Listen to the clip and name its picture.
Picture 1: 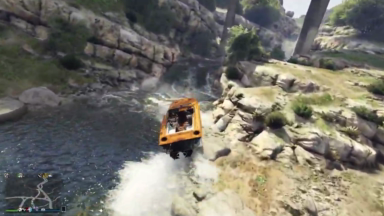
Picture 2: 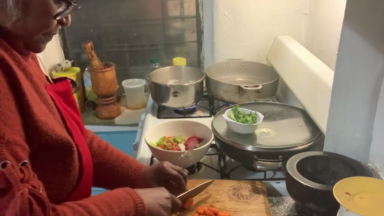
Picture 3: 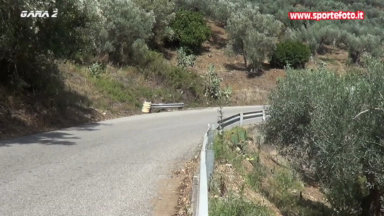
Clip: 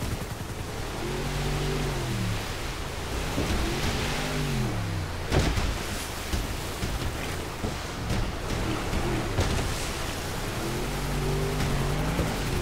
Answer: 1